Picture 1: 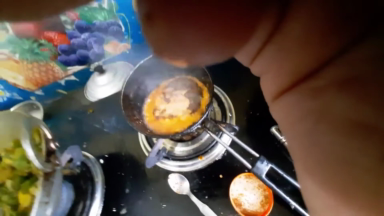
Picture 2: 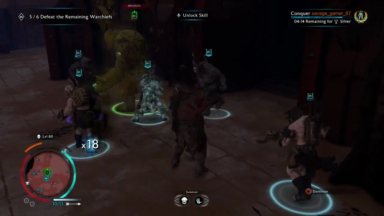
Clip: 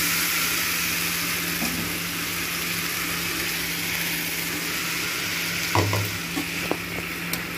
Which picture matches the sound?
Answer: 1